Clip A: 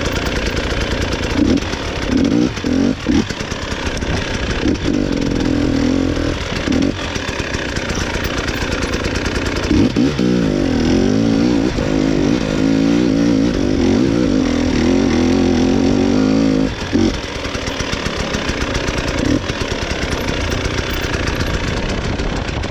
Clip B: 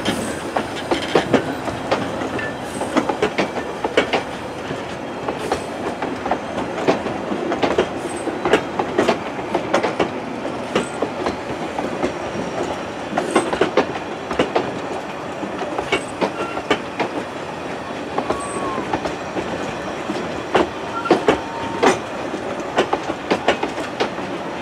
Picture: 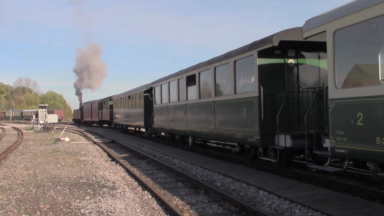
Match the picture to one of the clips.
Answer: B